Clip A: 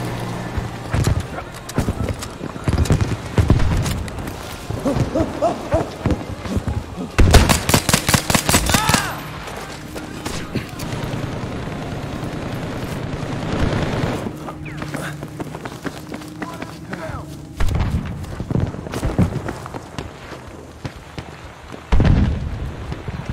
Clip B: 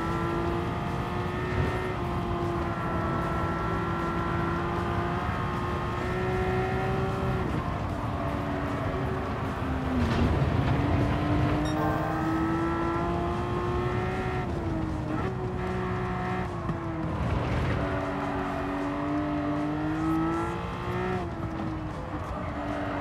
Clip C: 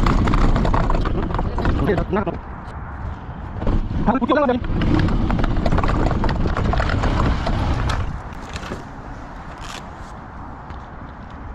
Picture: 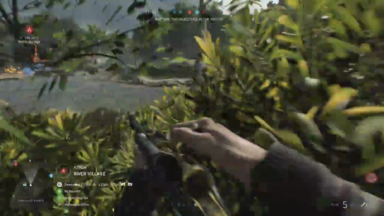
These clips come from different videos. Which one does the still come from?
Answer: A